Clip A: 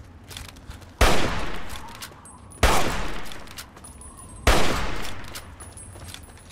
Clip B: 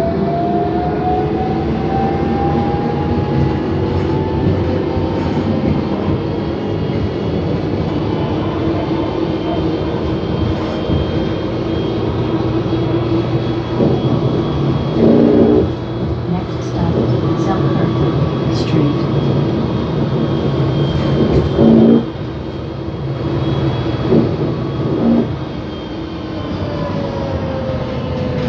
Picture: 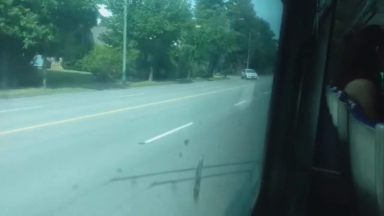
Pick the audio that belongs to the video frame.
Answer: B